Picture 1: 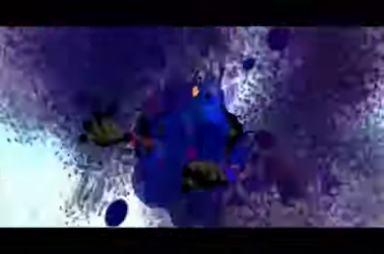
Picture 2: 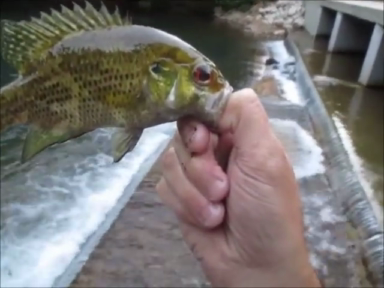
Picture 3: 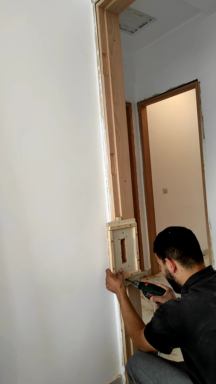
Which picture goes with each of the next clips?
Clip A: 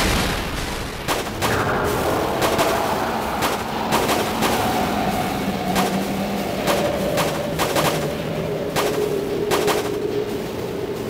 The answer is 1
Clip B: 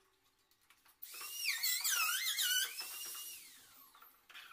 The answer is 3